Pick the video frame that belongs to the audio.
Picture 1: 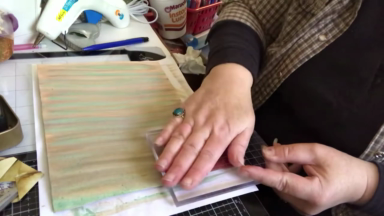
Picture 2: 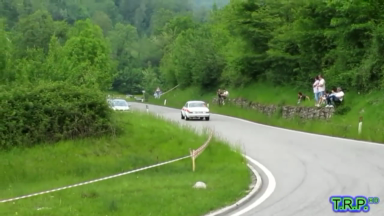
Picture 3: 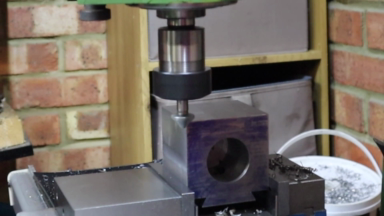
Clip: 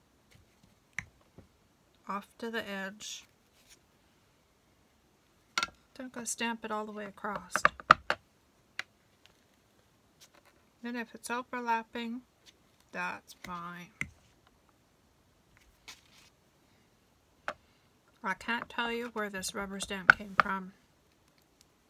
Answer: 1